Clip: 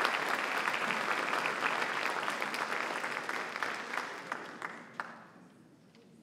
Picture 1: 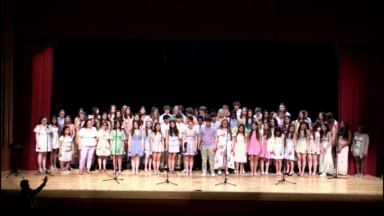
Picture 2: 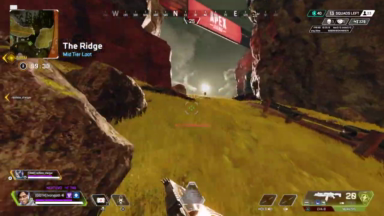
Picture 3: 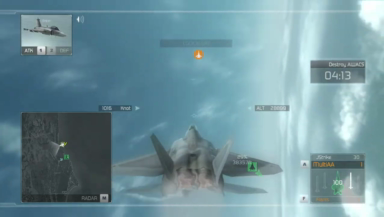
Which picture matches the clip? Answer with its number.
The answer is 1